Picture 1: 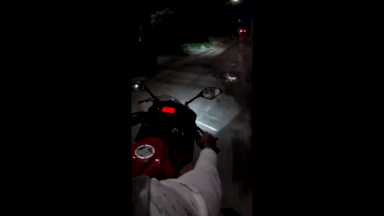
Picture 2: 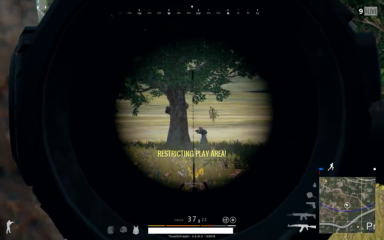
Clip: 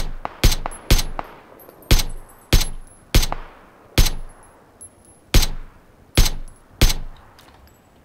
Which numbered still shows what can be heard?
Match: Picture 2